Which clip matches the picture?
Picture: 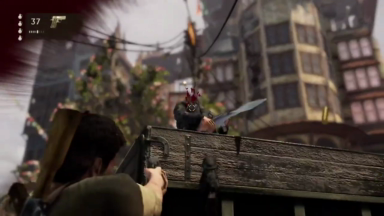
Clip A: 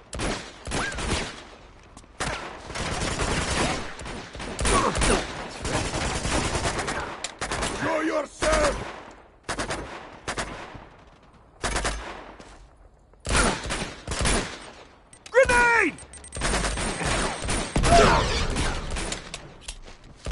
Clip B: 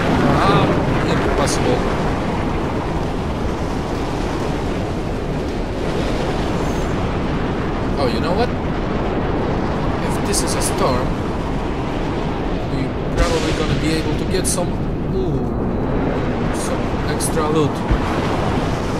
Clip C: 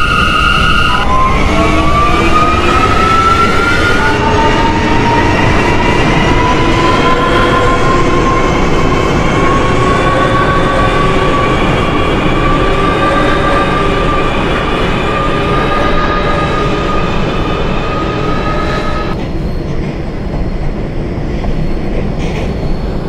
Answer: A